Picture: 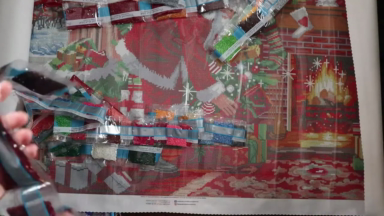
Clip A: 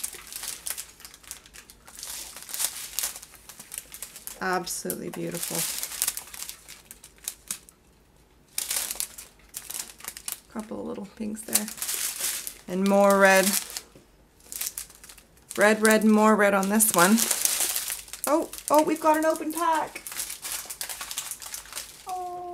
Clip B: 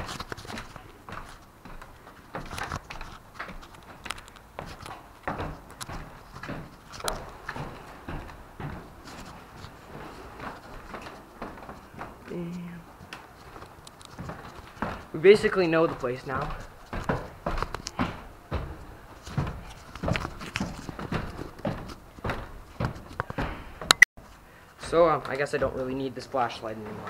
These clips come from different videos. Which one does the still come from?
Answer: A